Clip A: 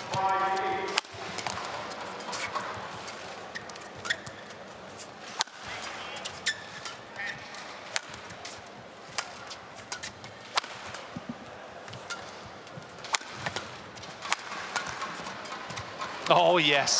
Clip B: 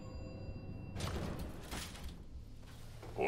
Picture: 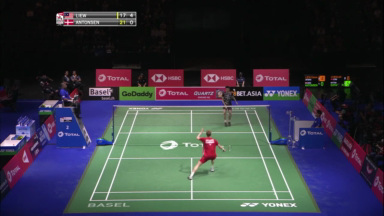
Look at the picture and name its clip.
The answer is A